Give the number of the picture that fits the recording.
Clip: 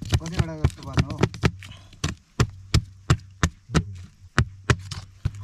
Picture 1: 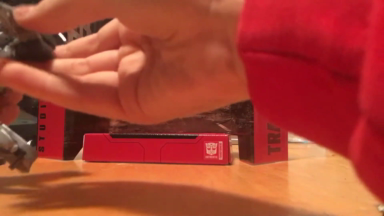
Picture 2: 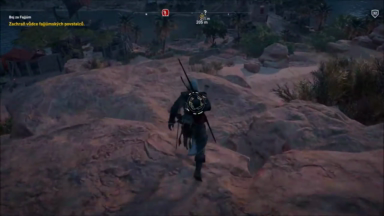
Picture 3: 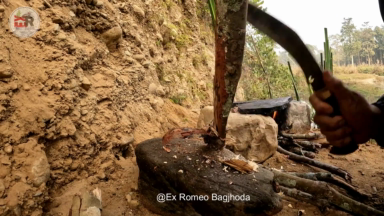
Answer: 3